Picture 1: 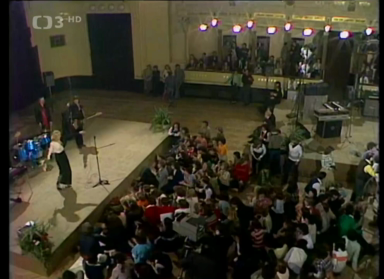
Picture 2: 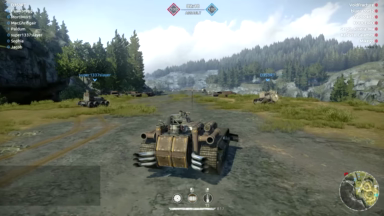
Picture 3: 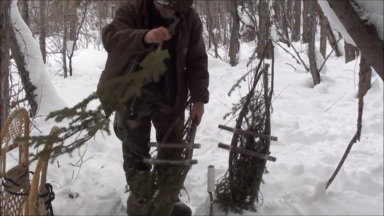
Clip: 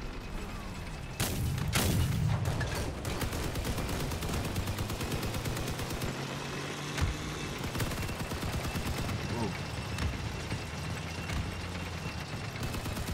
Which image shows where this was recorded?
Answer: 2